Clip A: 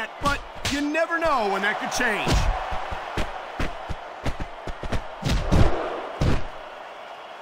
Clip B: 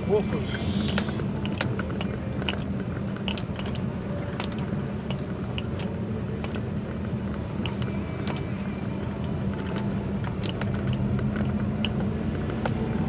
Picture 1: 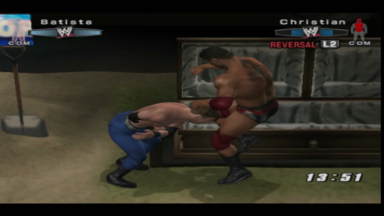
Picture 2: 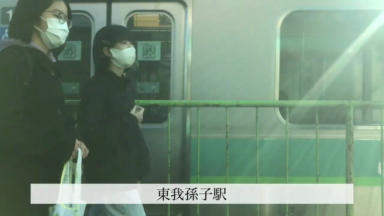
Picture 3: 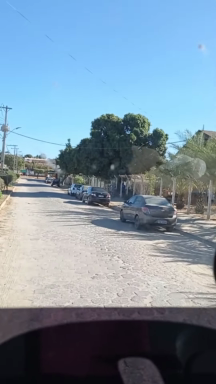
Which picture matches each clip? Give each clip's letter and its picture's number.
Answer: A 1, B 3